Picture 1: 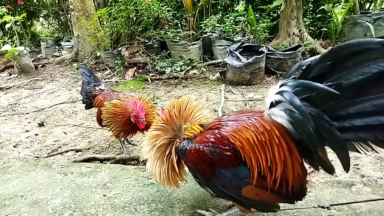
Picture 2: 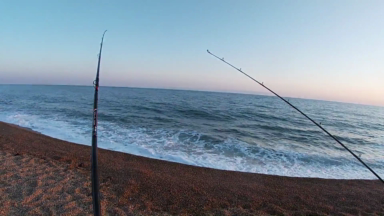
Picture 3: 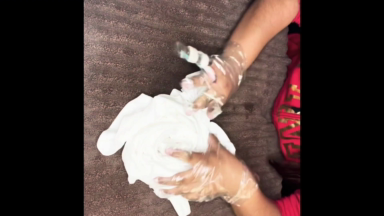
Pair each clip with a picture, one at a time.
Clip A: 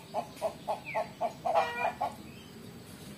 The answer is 1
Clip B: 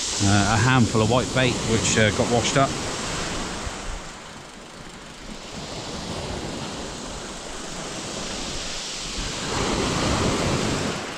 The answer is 2